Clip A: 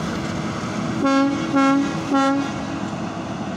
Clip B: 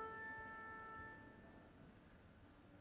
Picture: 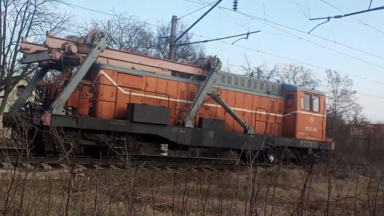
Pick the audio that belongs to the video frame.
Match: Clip A